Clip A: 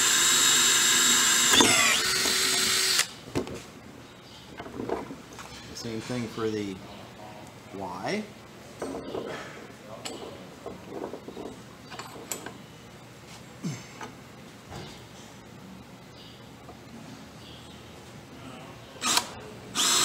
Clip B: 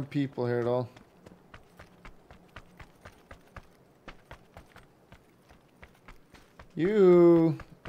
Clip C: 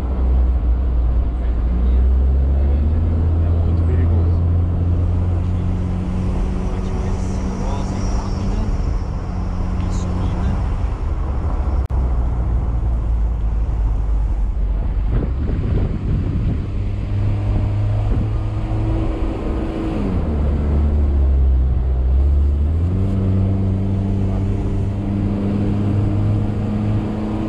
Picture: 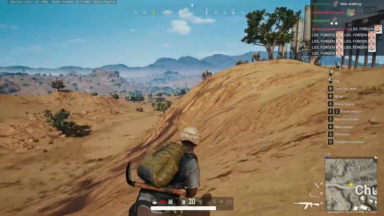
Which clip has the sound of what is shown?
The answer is B